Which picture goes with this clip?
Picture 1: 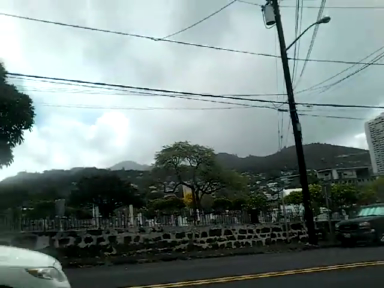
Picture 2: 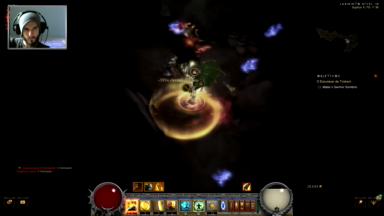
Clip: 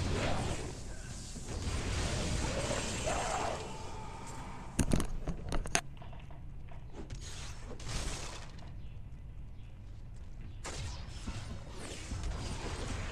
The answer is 2